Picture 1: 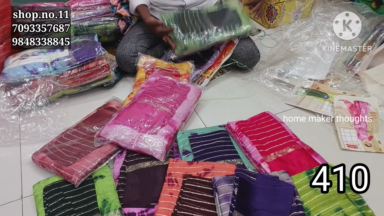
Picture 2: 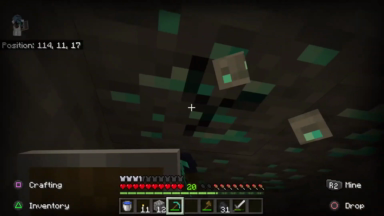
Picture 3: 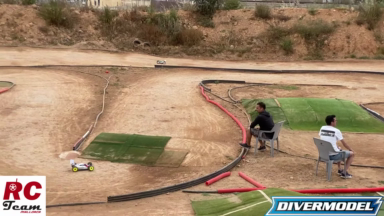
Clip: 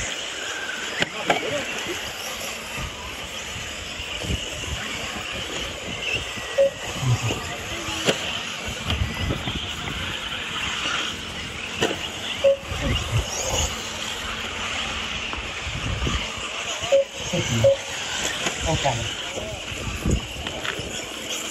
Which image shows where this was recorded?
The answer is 3